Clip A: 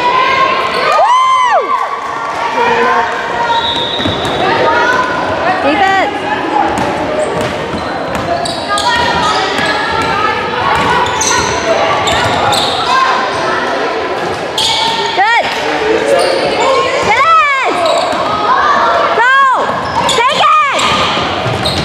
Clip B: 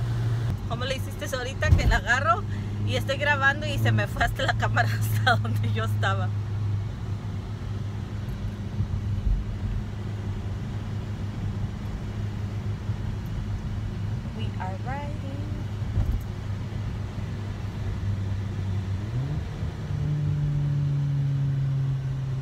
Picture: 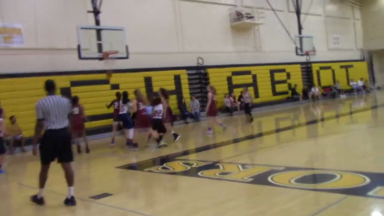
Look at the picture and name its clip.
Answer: A